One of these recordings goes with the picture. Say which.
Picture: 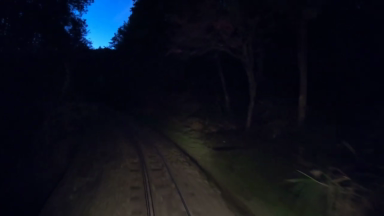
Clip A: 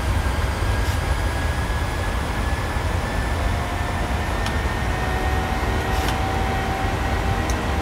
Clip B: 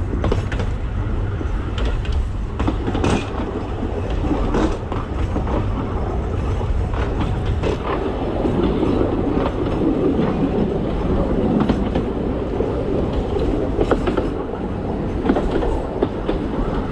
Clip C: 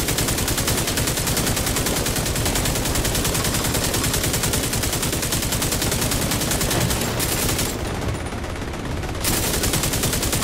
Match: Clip B